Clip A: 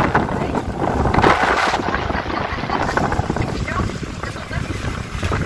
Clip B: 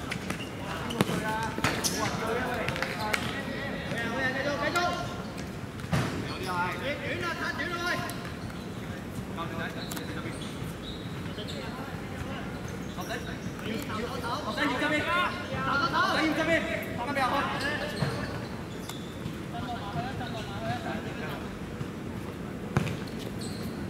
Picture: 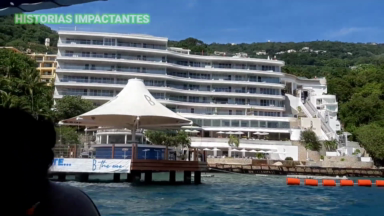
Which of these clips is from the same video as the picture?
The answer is A